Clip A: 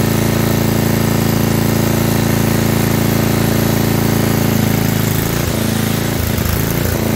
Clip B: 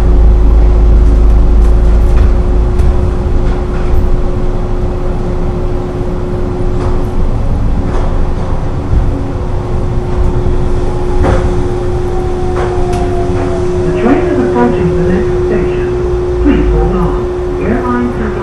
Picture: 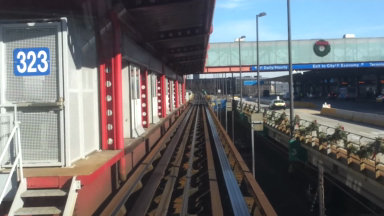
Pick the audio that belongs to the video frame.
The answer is B